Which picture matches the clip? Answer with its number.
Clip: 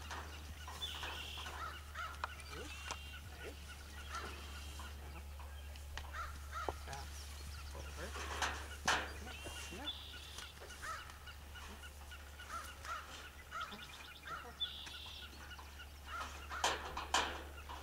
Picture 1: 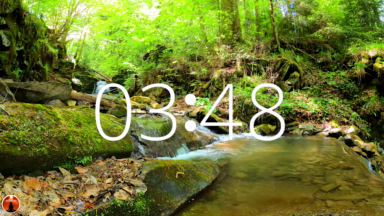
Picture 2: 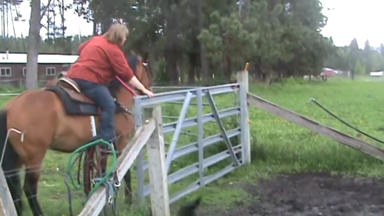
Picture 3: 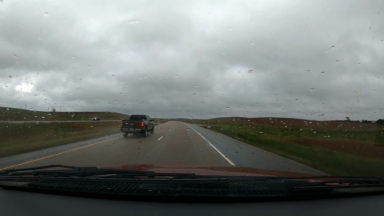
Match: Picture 2